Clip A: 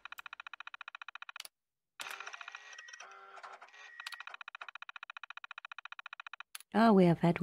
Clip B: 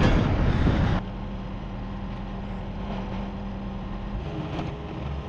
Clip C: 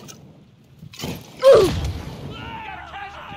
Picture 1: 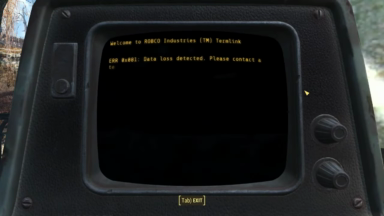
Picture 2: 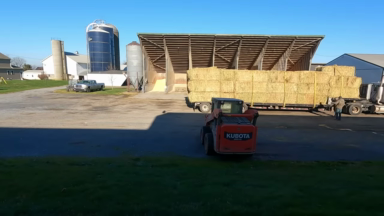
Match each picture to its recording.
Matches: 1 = A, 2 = B